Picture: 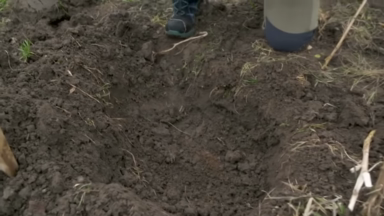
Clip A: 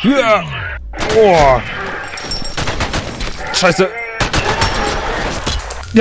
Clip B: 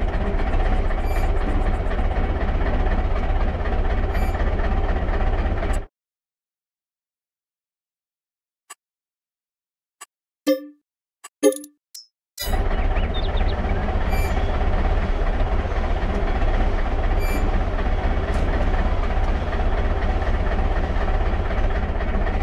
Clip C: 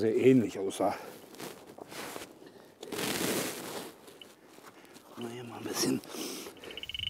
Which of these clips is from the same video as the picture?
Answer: C